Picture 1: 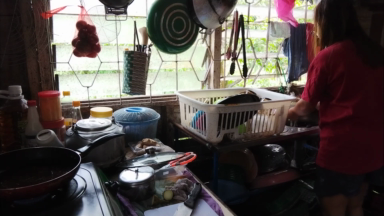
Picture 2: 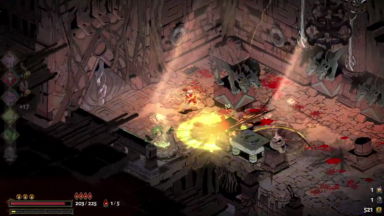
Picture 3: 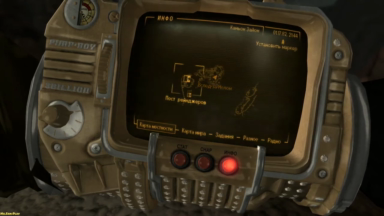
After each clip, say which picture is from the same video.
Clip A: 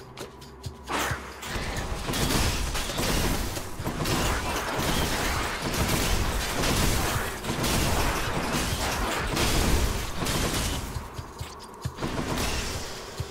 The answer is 2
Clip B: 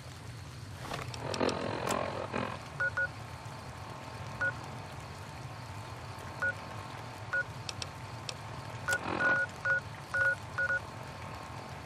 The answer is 3